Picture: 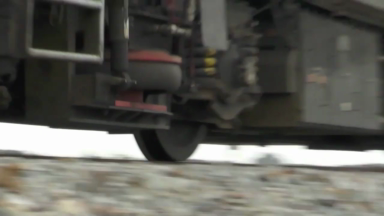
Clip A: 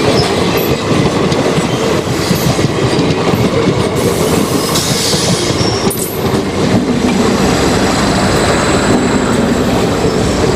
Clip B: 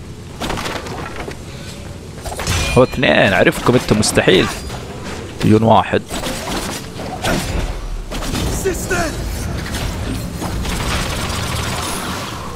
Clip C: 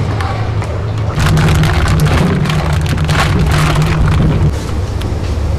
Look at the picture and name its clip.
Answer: A